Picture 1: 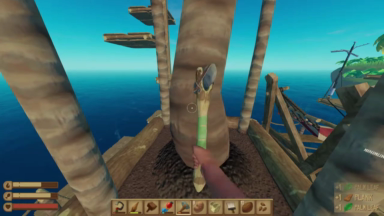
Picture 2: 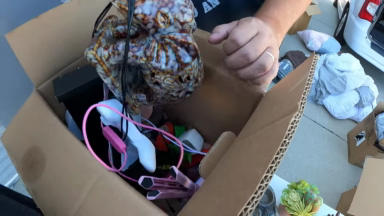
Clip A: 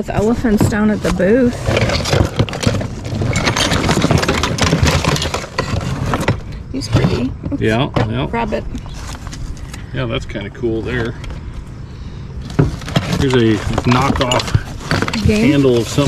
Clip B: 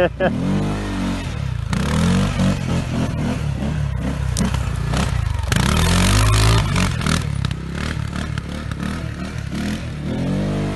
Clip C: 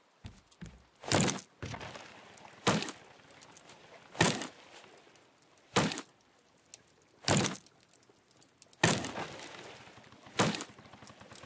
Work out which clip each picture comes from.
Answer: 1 C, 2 A